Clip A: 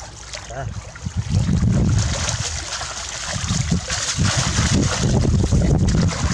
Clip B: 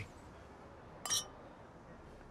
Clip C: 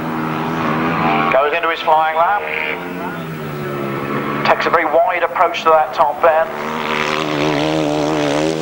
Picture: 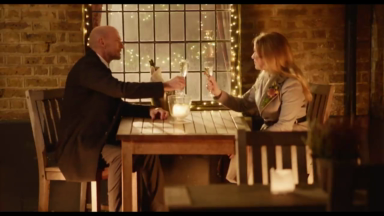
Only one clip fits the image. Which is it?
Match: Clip B